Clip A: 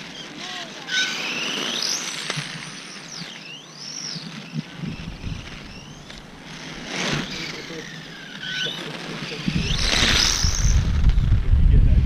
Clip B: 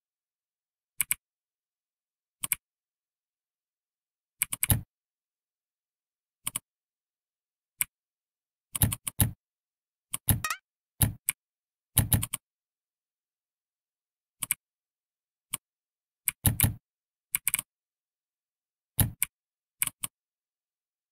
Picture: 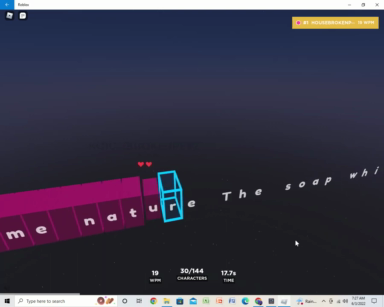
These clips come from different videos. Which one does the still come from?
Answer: B